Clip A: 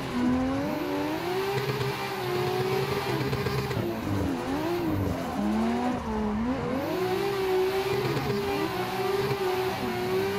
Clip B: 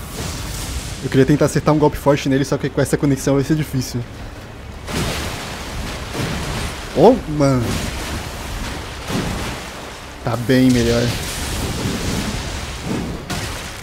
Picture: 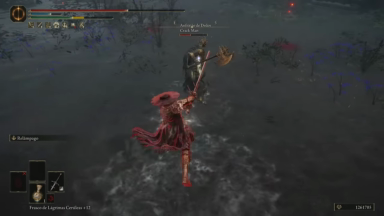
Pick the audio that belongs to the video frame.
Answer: B